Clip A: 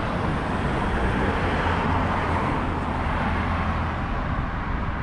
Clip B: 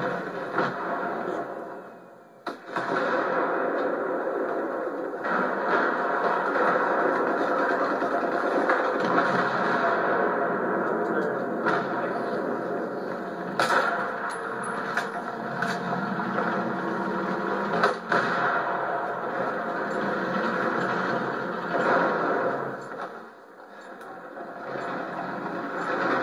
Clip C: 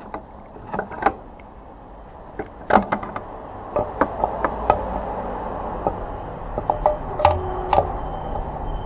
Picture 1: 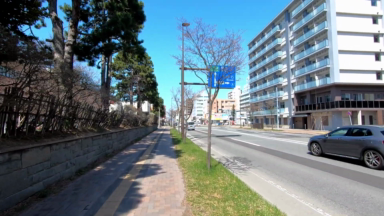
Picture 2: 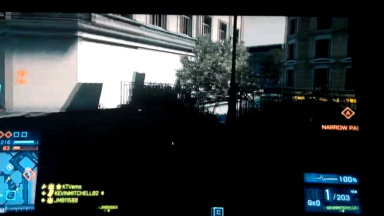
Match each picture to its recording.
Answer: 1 A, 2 B